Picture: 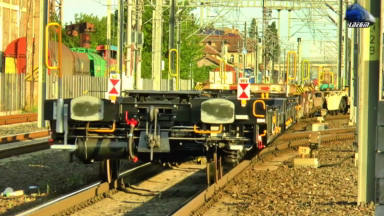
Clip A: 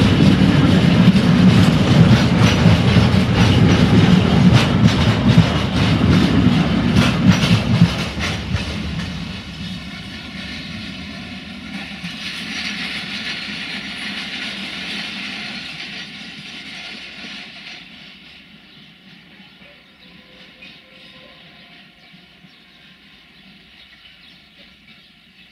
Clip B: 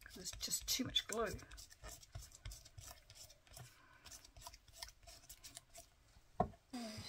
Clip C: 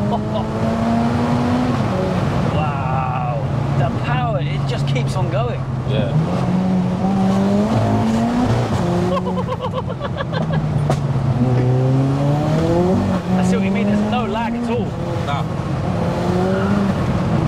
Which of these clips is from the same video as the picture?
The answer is A